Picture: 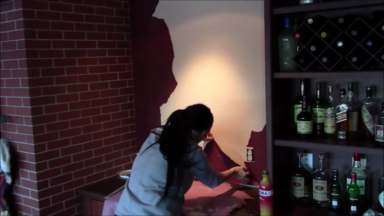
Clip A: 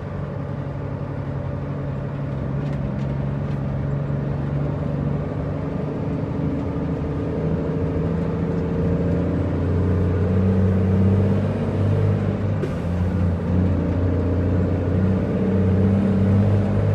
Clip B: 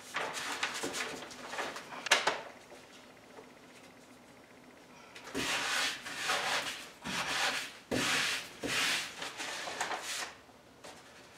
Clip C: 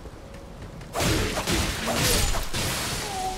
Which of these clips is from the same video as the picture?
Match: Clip B